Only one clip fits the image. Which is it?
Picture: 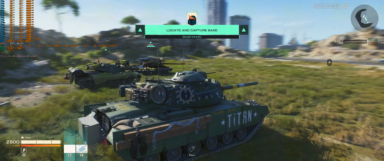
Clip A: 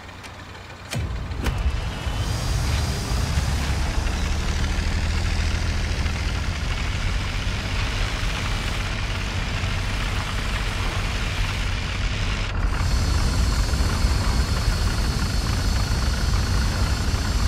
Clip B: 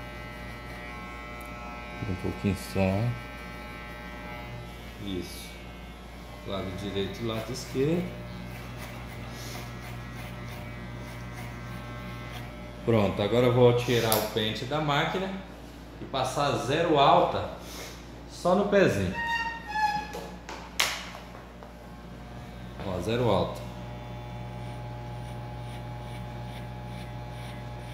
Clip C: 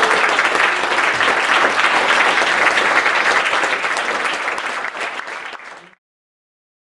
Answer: A